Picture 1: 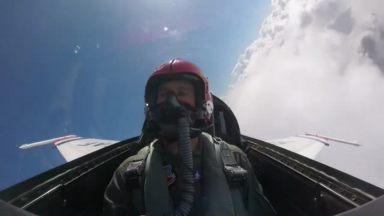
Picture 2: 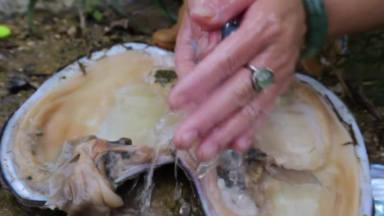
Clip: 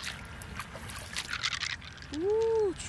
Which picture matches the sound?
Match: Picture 2